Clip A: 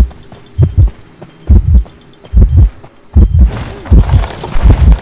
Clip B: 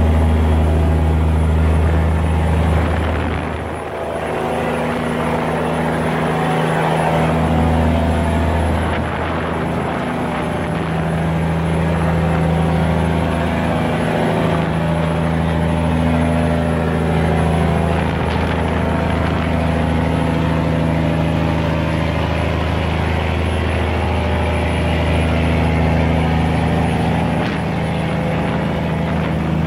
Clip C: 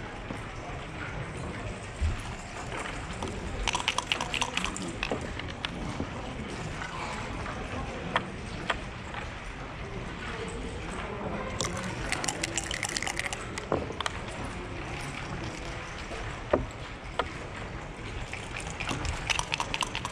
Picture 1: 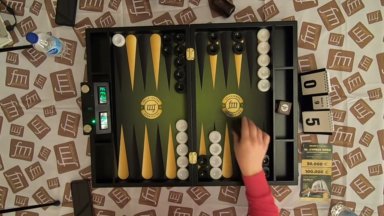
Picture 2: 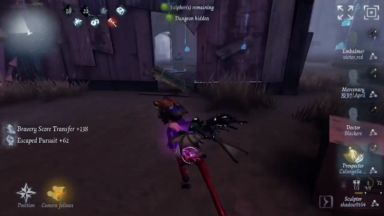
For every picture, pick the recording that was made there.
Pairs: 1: C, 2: A